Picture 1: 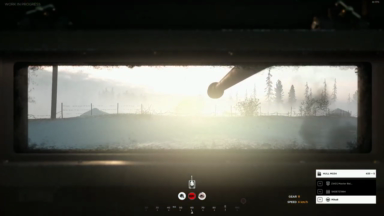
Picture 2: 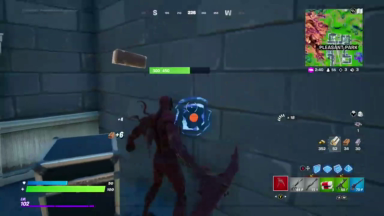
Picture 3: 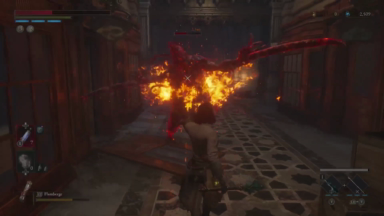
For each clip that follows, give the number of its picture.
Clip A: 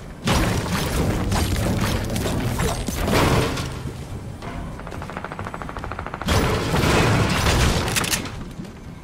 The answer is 2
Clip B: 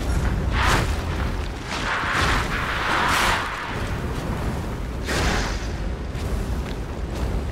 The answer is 3